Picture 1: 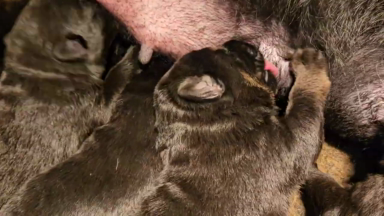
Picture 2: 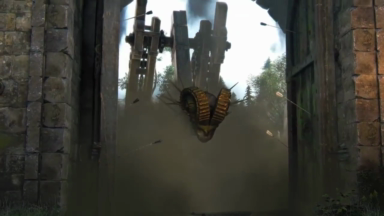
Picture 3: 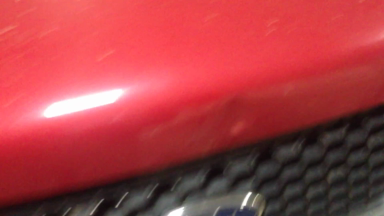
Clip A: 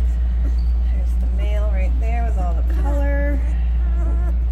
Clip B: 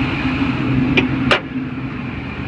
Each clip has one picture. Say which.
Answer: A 1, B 3